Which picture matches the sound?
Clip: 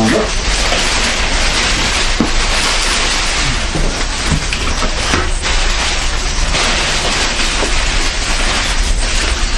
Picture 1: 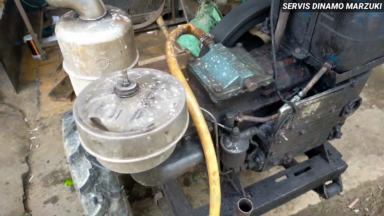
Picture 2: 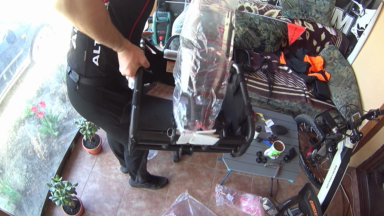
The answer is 2